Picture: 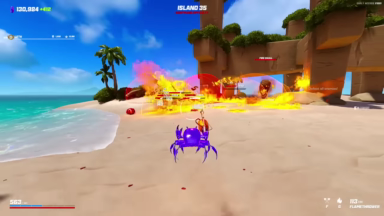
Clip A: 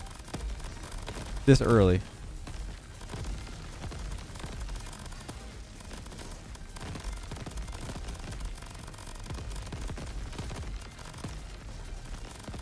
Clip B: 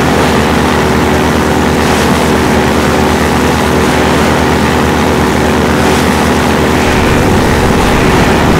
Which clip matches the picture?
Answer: A